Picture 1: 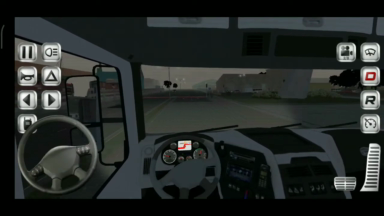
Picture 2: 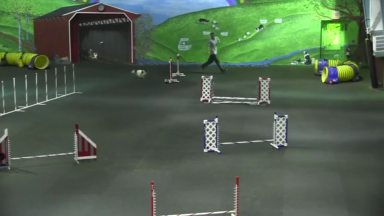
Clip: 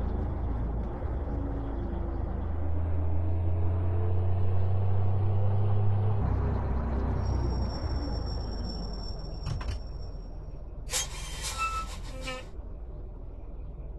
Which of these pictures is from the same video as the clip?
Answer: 1